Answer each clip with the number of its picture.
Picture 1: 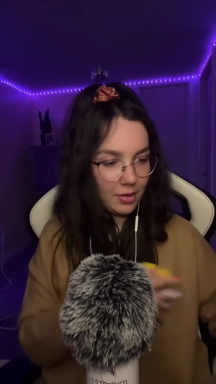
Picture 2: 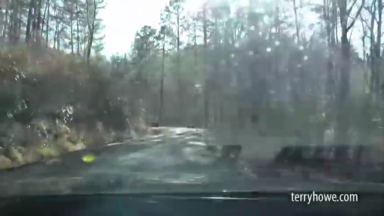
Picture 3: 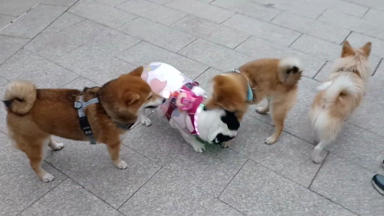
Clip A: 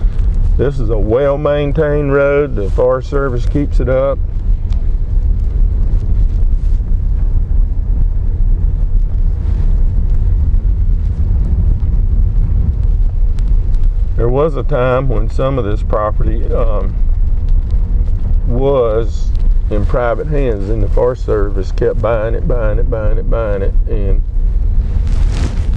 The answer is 2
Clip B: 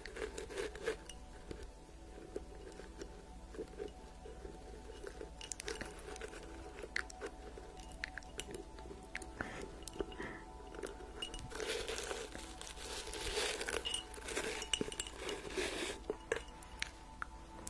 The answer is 1